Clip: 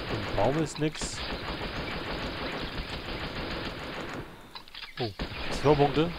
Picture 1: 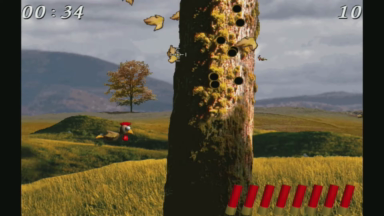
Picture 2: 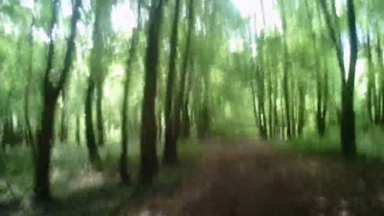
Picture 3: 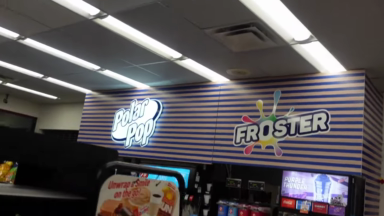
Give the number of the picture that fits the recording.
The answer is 1